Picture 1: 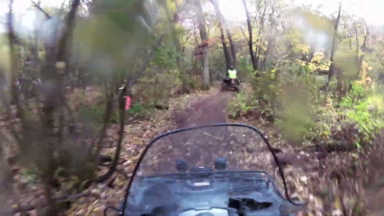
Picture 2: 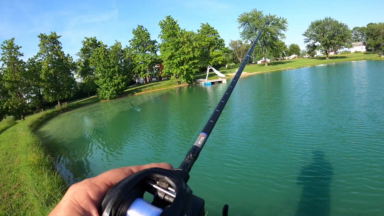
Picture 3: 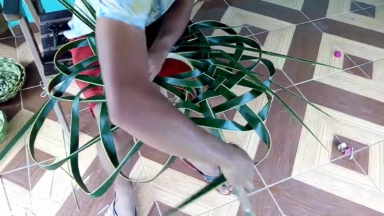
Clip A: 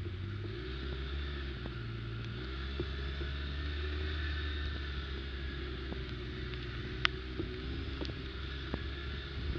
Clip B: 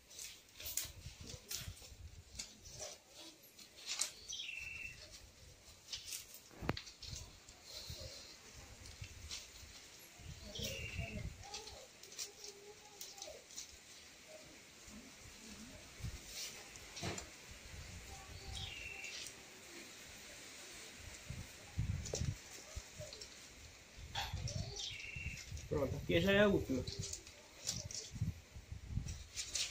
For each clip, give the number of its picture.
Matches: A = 1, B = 3